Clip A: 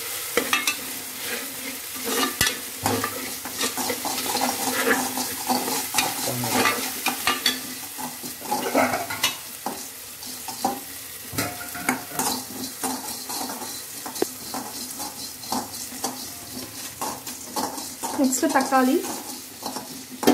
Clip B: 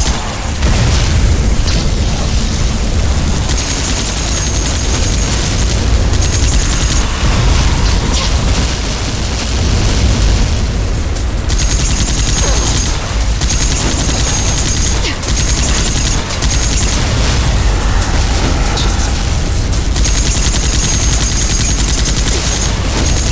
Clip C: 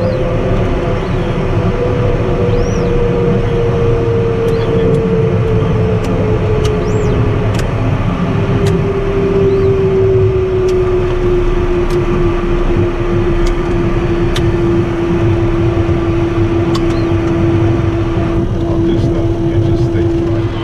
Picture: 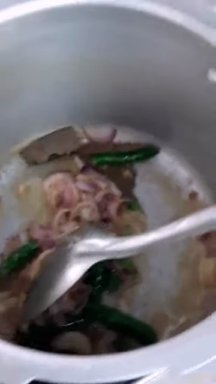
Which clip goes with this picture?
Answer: A